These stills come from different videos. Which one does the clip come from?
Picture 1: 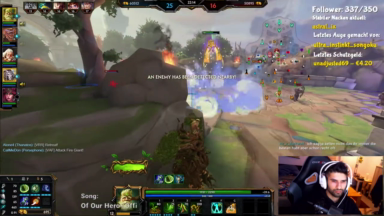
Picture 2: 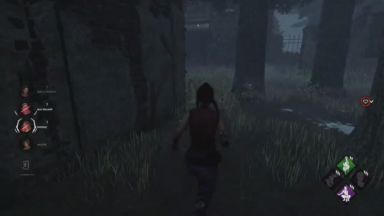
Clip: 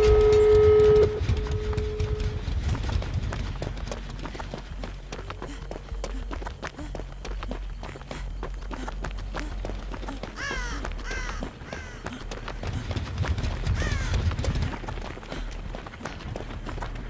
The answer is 2